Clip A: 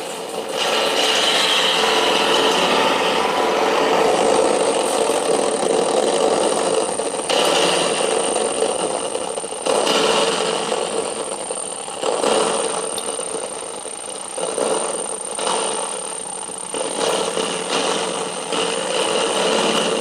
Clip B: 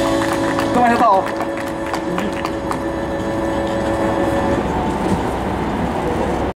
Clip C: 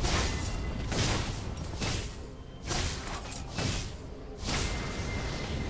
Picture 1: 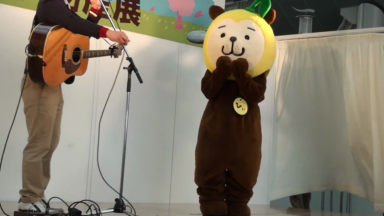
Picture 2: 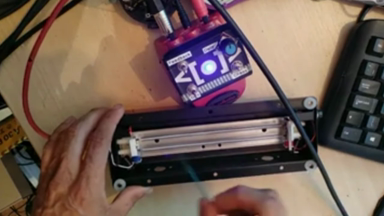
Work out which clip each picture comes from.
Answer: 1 B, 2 A